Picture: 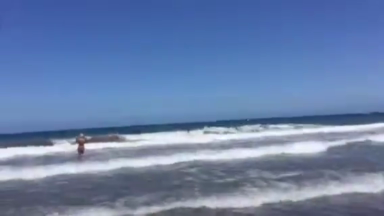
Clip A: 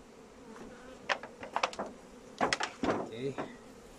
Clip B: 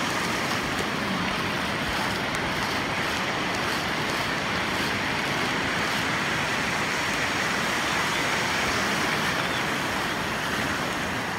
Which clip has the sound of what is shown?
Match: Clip B